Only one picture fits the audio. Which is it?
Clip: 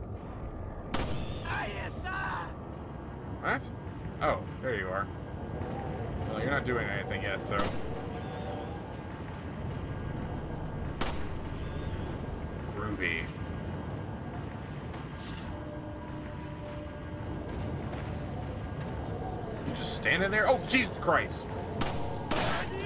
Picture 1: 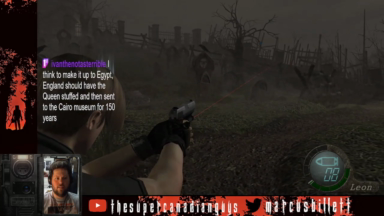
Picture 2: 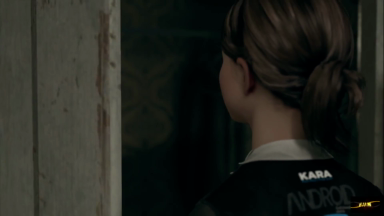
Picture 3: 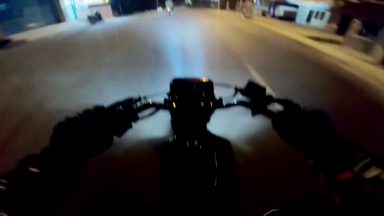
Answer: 1